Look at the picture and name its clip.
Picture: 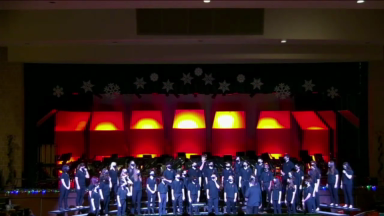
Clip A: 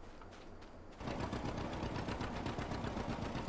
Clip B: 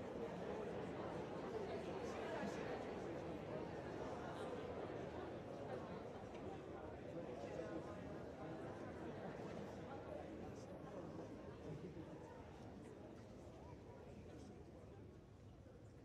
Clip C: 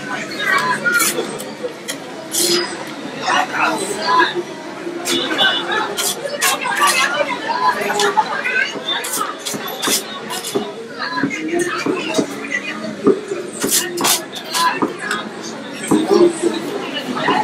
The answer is B